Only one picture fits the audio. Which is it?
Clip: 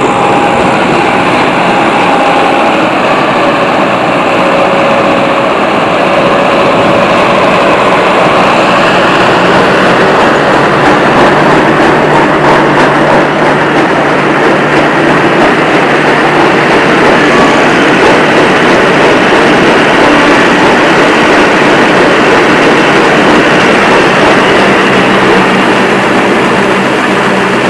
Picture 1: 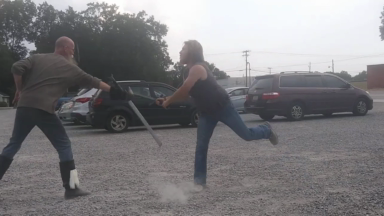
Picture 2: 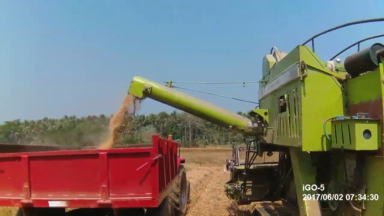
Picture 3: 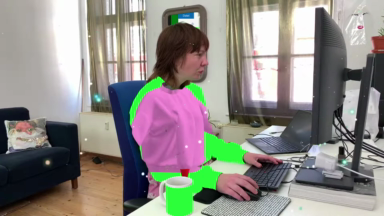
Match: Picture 2